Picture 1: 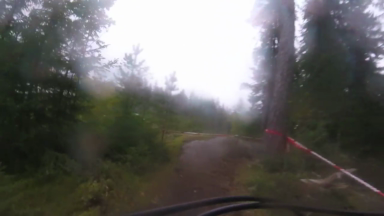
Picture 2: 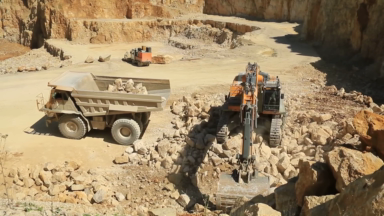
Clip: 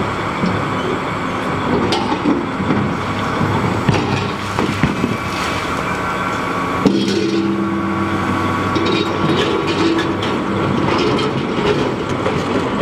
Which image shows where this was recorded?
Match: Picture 2